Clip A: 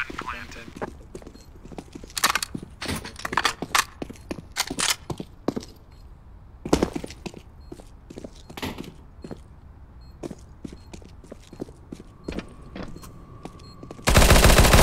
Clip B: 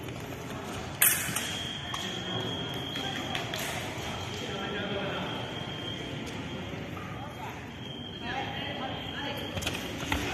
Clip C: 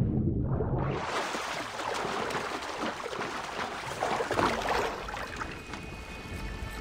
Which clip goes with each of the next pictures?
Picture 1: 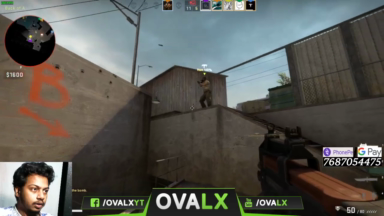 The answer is A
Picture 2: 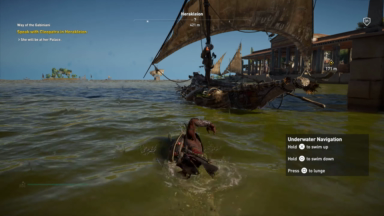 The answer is C